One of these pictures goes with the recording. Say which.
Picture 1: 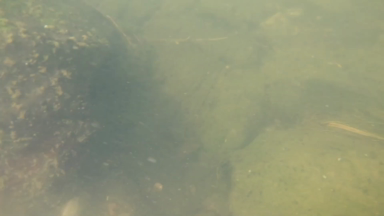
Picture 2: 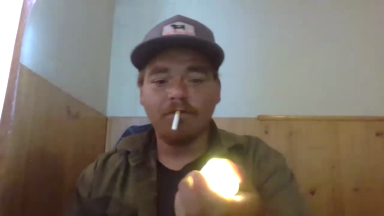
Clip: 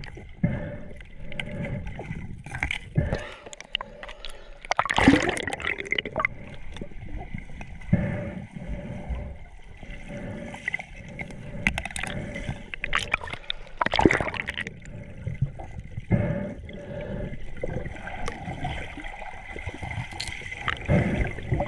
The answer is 1